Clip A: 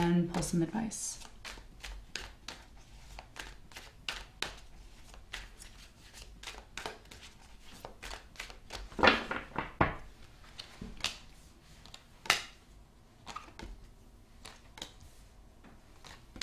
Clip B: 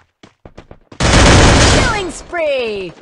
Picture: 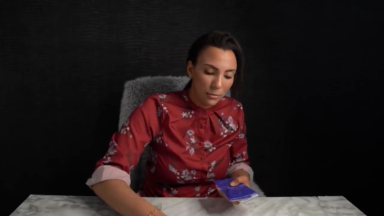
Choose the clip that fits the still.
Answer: A